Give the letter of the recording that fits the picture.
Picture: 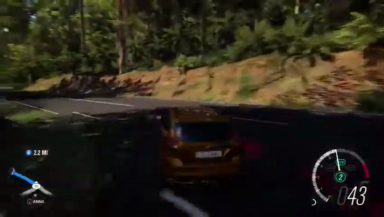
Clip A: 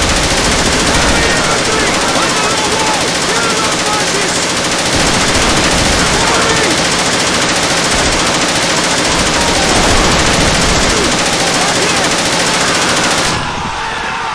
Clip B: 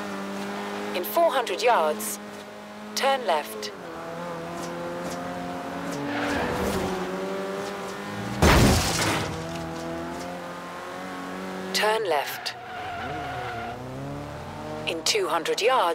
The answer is B